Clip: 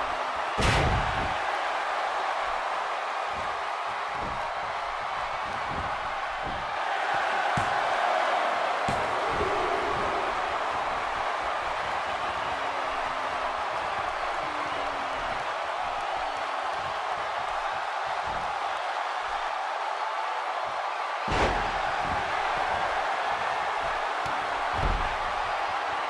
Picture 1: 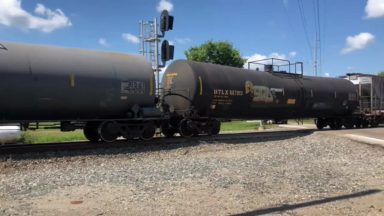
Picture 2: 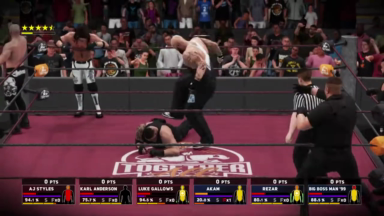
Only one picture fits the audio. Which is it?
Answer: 2